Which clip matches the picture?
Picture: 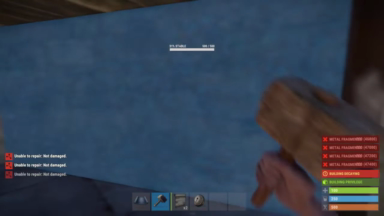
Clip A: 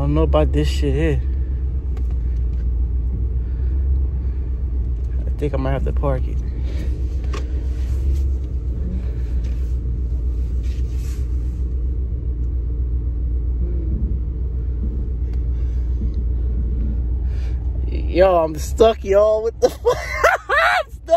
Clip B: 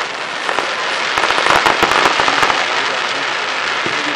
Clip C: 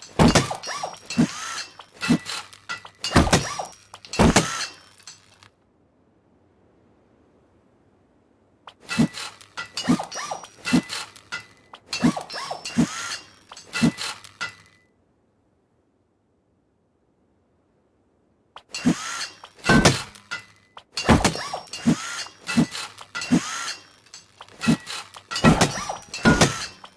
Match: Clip C